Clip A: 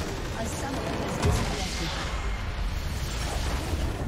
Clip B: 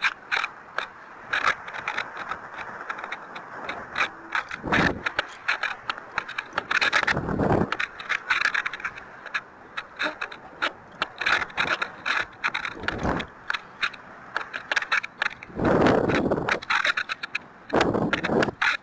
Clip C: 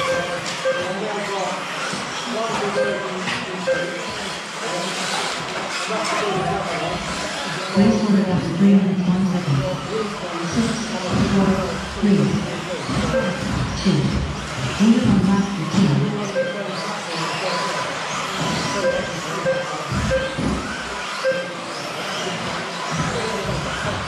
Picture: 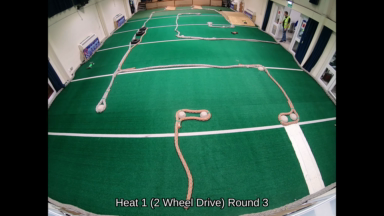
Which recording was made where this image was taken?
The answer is C